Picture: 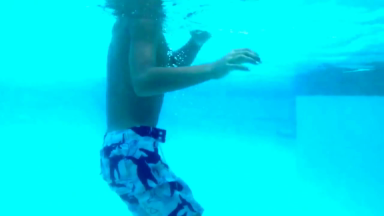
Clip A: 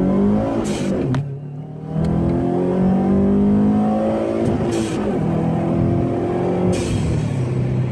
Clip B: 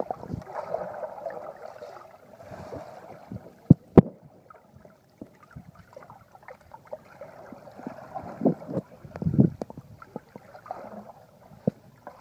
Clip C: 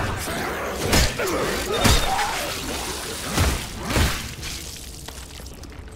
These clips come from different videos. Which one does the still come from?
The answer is B